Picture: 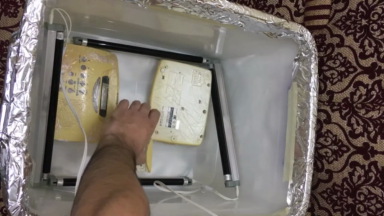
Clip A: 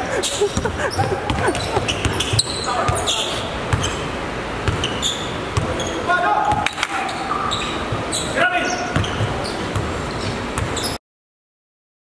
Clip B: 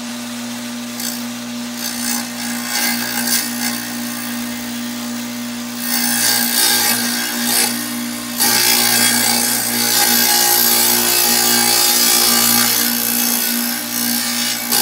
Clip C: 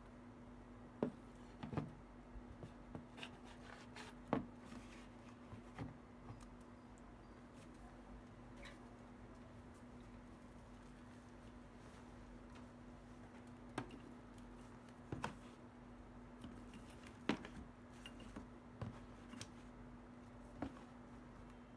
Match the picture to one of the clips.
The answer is C